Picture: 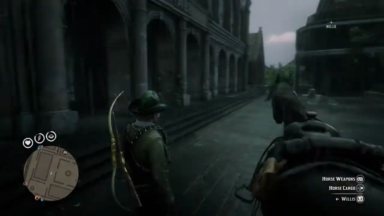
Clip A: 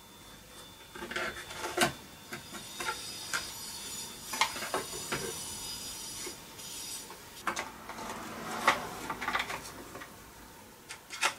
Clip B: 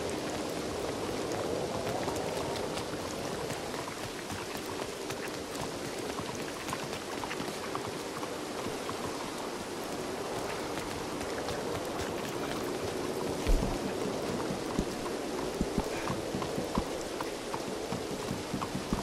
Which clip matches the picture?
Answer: B